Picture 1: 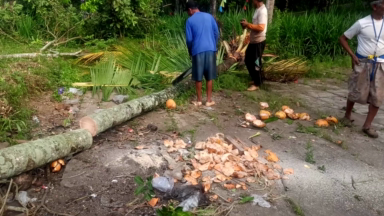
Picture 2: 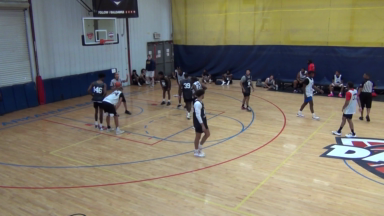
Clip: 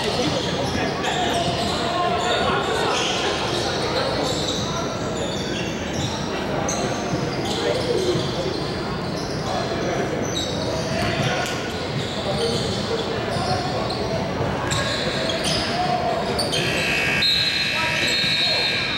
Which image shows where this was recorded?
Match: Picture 2